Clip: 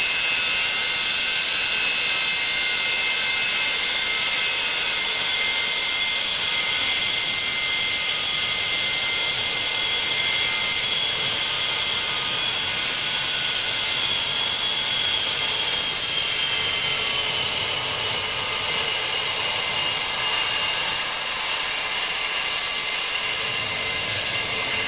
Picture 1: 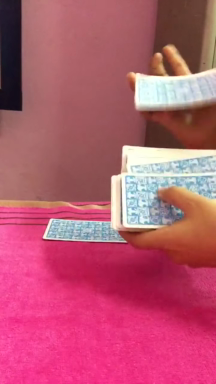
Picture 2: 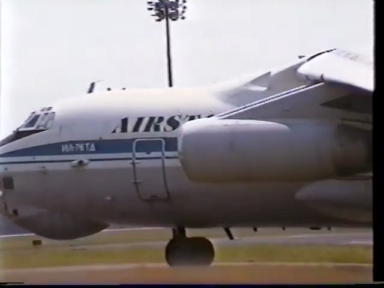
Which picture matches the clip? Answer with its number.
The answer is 2